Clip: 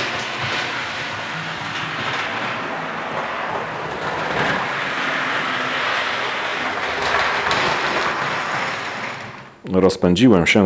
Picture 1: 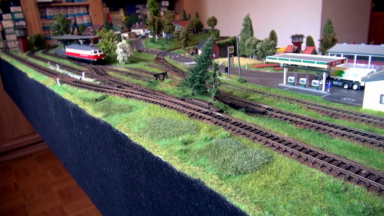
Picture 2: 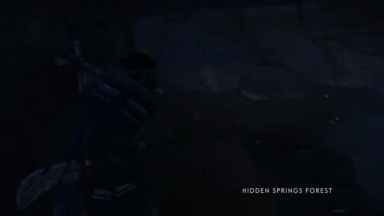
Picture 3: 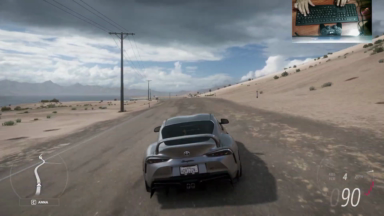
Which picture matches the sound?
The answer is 1